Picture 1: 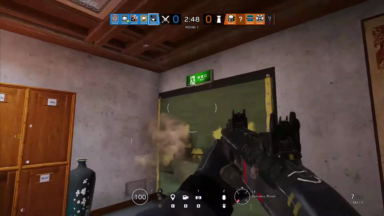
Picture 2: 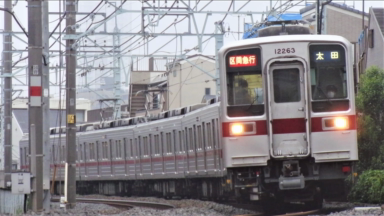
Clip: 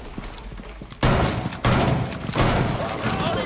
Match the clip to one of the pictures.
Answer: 1